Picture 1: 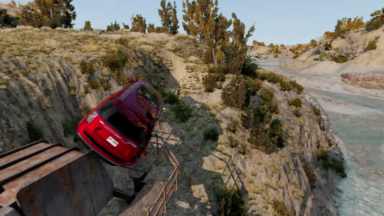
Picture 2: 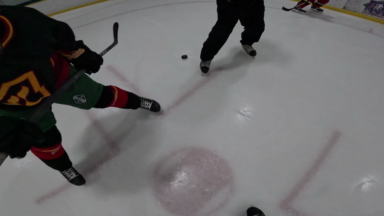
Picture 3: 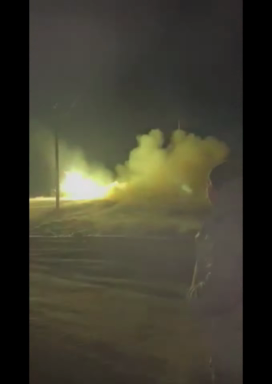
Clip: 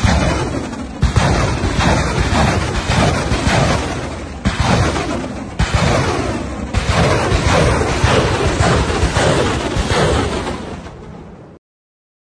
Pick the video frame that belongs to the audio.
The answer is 3